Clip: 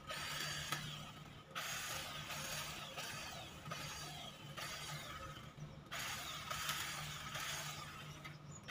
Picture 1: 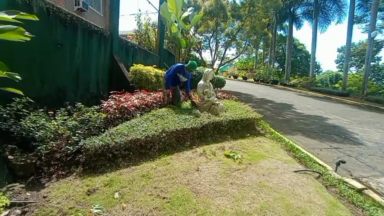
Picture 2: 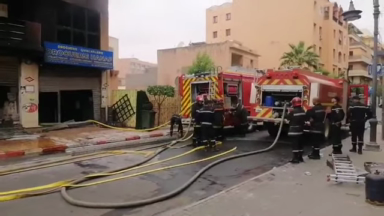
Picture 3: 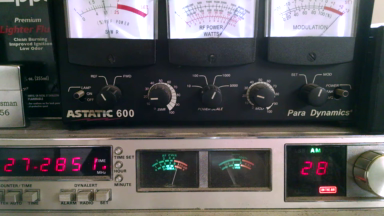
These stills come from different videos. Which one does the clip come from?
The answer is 1